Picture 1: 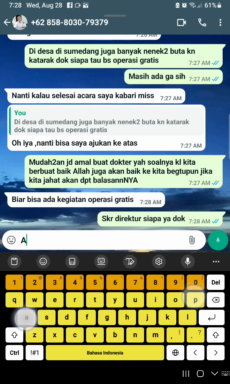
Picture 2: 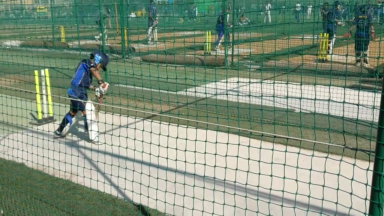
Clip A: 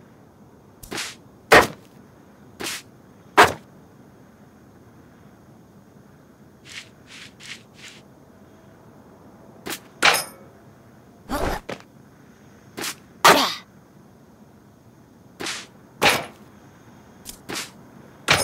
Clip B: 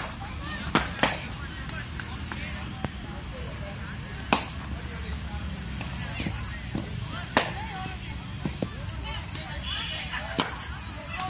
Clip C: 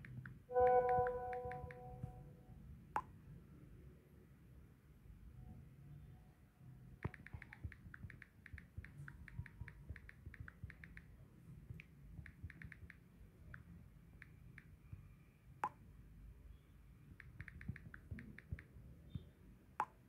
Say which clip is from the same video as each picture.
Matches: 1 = C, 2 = B